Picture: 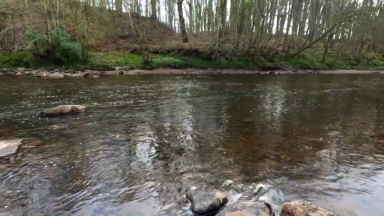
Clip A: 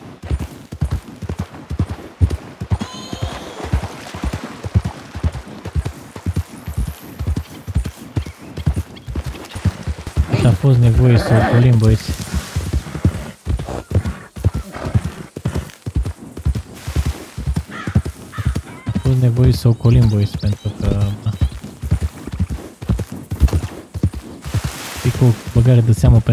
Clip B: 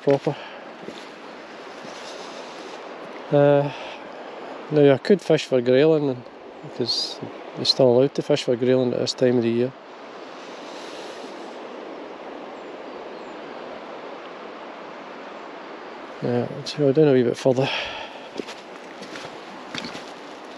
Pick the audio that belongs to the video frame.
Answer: B